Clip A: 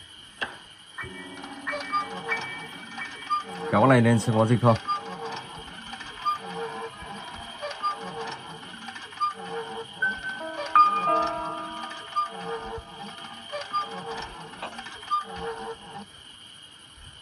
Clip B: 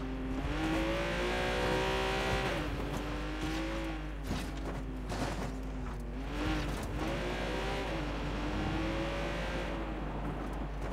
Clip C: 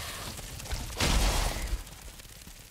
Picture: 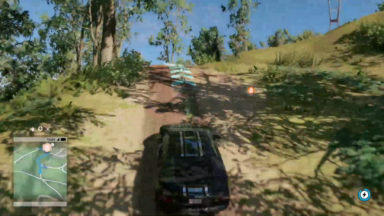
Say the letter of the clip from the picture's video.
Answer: B